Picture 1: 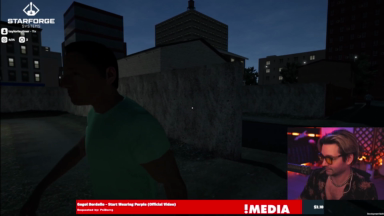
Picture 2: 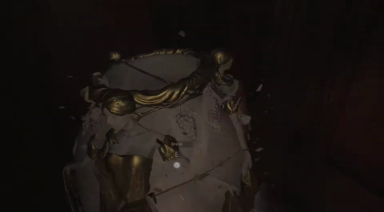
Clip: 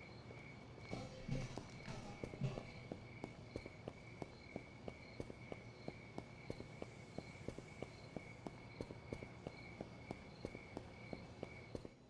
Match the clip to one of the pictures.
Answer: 1